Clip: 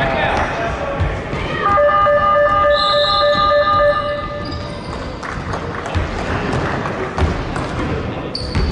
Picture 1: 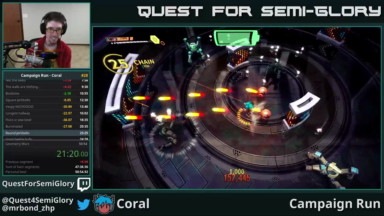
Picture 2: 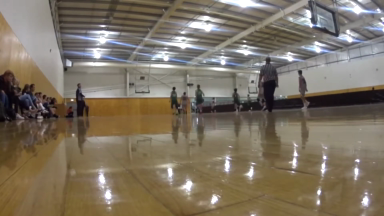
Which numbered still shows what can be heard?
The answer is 2